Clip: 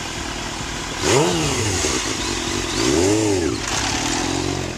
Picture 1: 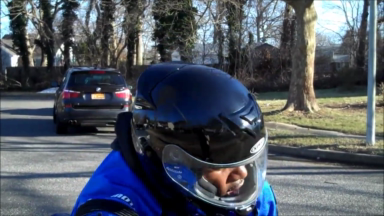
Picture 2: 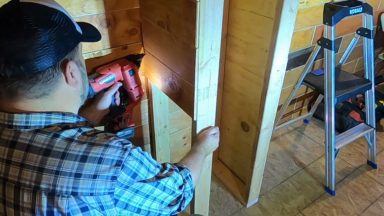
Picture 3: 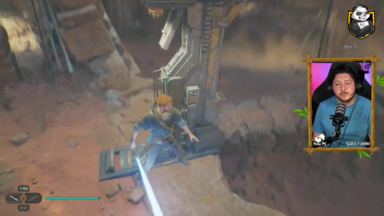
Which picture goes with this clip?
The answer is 1